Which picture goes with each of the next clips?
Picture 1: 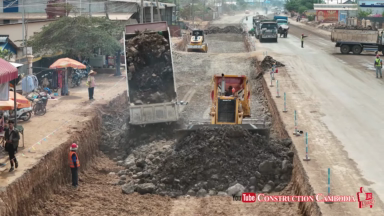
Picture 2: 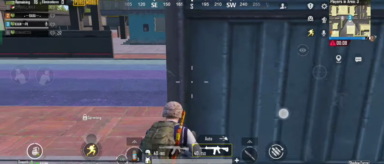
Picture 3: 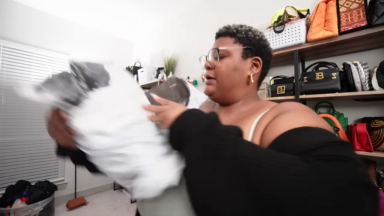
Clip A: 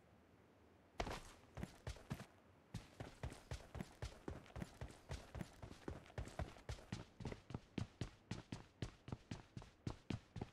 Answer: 2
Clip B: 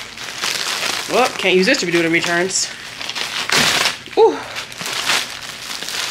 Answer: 3